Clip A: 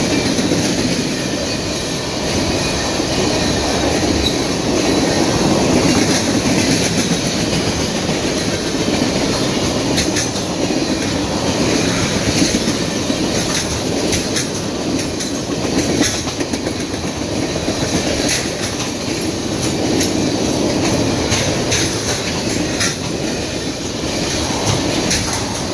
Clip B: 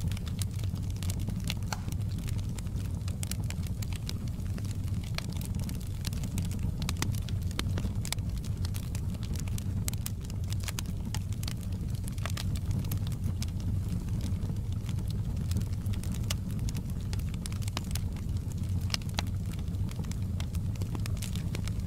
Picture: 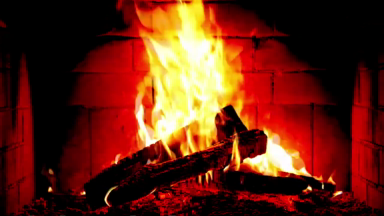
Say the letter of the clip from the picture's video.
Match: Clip B